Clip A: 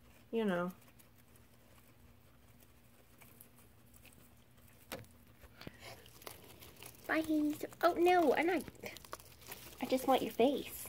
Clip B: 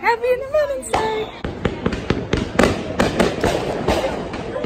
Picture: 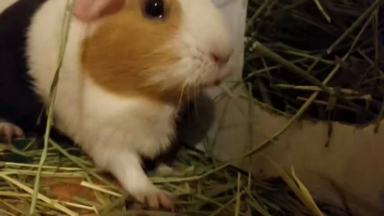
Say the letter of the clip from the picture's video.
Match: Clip A